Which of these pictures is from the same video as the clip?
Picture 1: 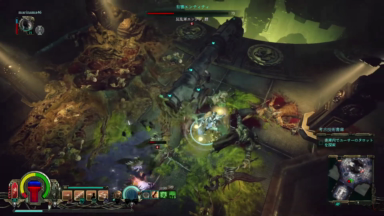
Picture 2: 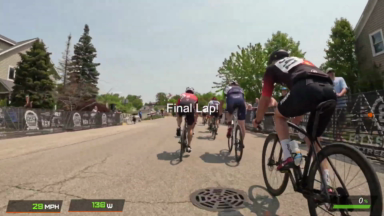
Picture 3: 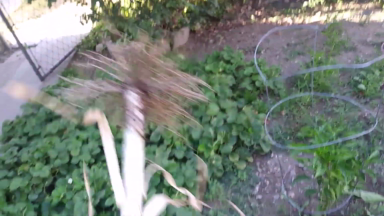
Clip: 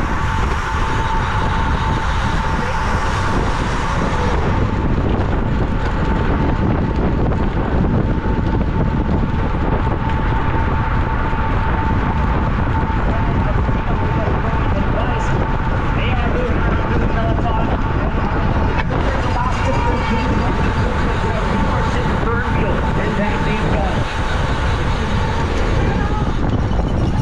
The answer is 2